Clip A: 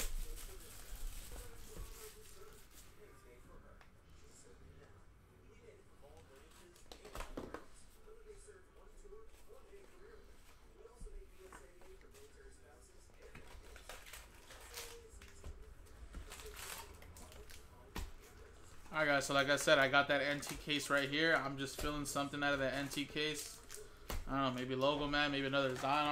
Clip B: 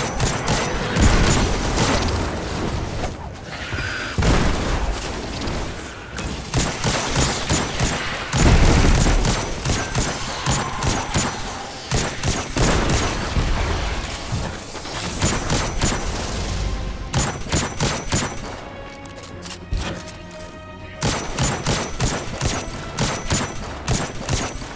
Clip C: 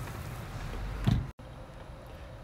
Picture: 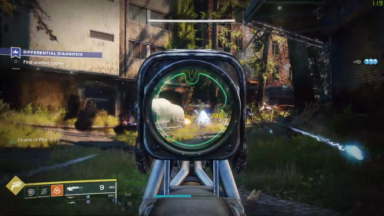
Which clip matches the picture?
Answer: B